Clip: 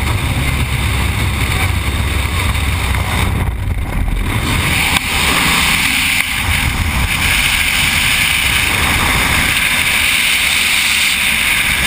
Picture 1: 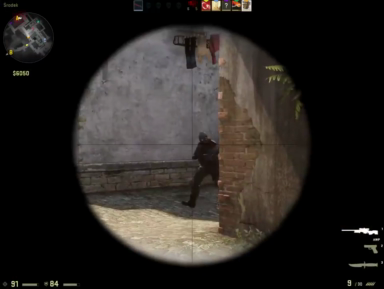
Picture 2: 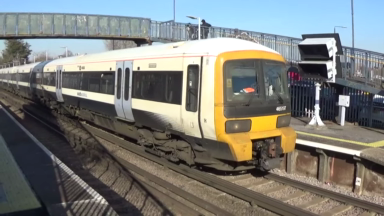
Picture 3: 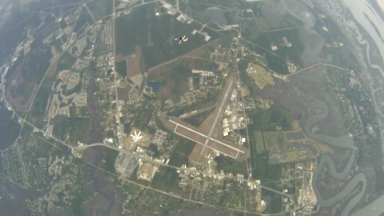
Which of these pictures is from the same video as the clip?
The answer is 3